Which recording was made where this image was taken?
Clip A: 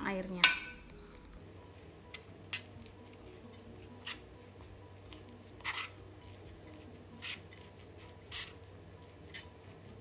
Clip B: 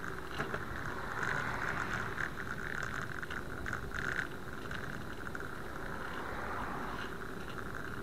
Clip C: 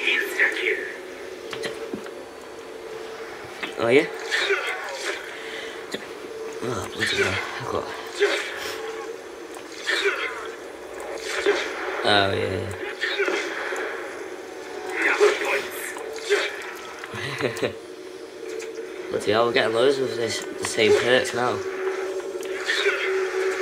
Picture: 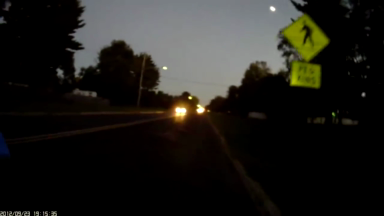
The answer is B